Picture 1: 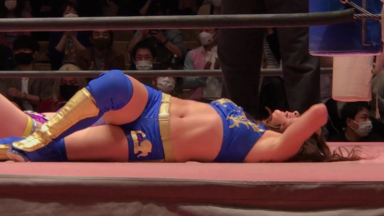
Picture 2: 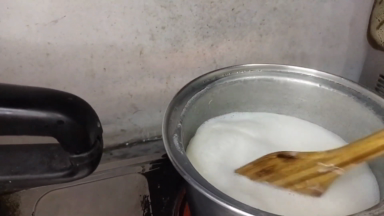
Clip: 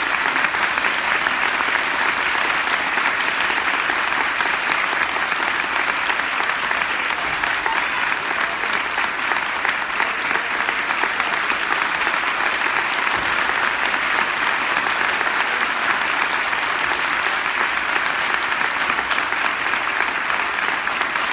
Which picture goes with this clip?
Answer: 1